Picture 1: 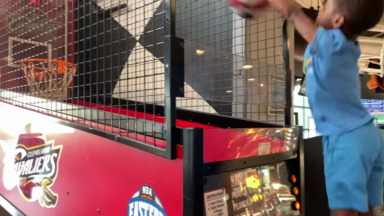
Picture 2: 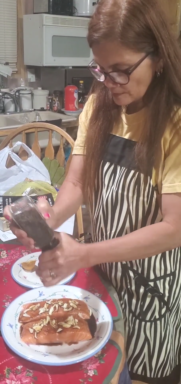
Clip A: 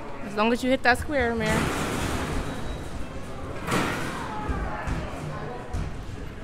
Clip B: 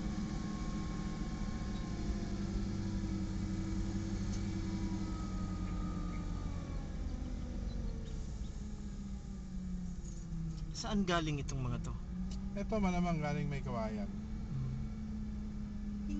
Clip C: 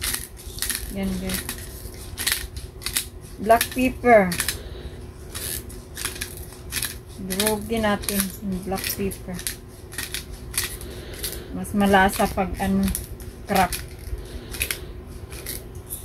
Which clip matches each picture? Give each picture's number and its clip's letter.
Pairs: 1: A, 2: C